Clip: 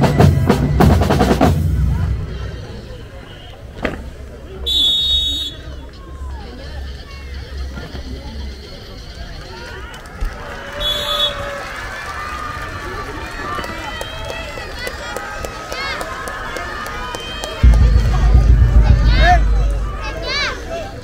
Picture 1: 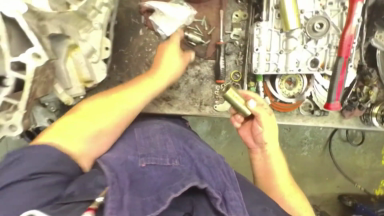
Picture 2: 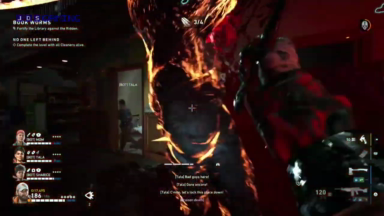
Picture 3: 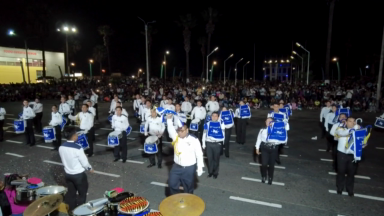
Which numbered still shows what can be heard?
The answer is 3